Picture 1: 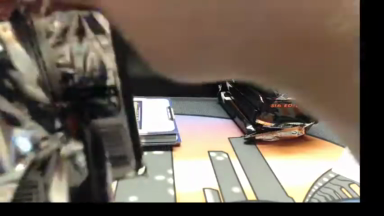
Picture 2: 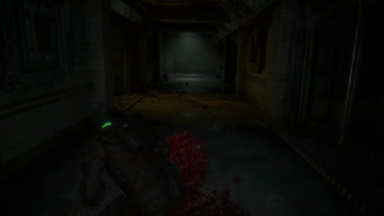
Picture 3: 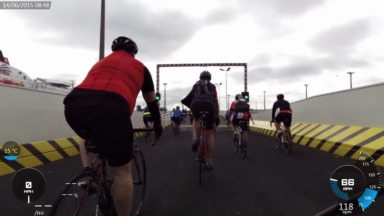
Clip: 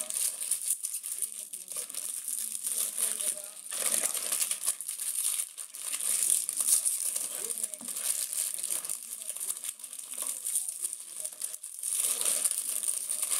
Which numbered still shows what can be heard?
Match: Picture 1